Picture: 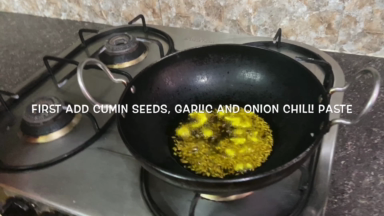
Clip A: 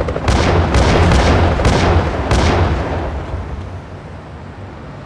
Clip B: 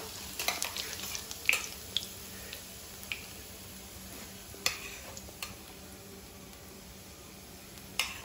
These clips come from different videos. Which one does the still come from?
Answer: B